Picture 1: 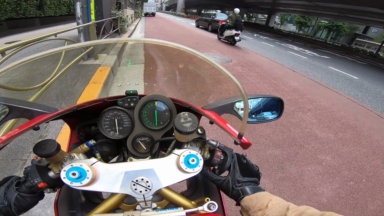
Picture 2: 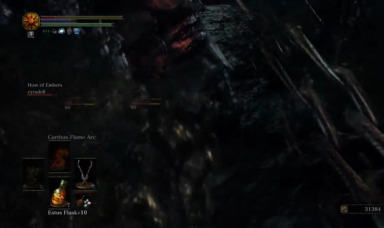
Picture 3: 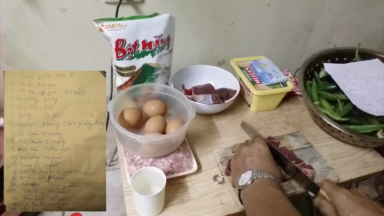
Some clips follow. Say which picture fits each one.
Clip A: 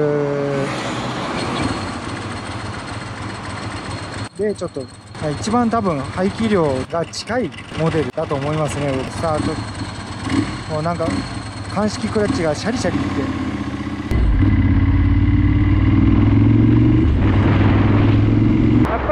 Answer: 1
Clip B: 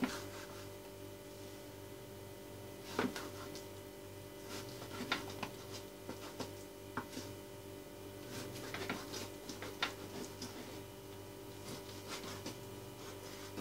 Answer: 3